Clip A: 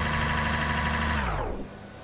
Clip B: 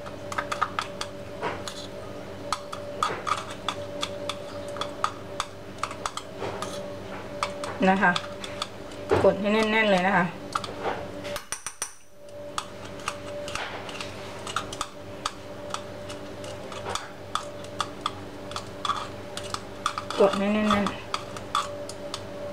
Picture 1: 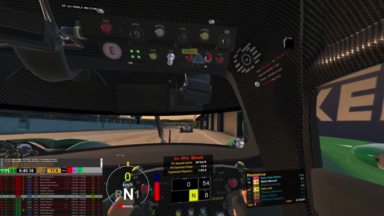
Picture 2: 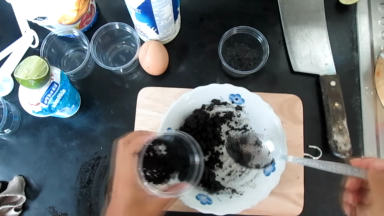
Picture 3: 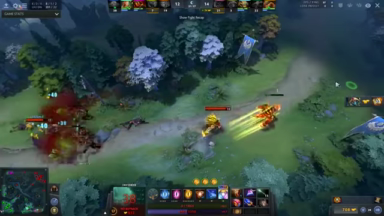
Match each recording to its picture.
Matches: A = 1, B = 2